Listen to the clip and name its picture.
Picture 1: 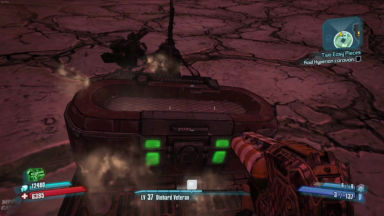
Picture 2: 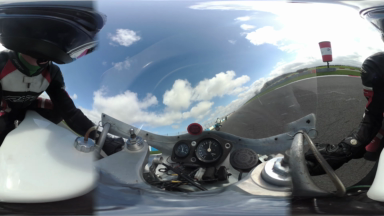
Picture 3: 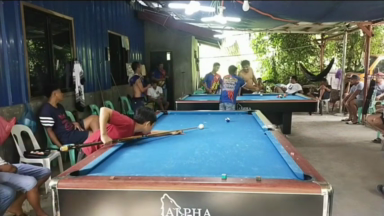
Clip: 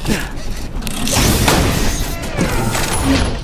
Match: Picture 1